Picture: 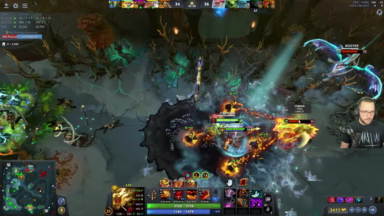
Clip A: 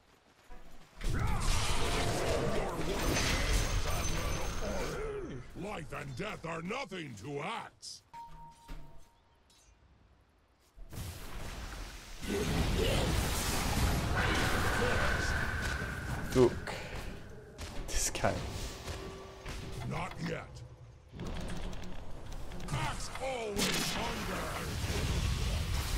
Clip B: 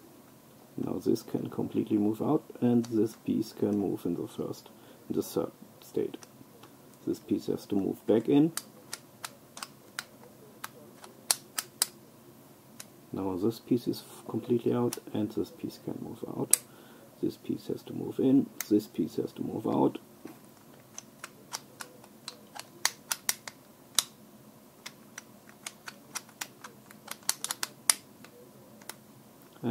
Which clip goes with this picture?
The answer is A